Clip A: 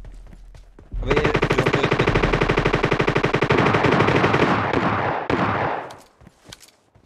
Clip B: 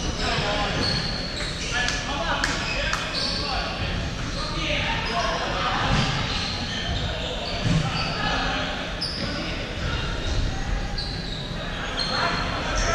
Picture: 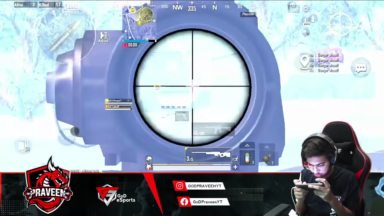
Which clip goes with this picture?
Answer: A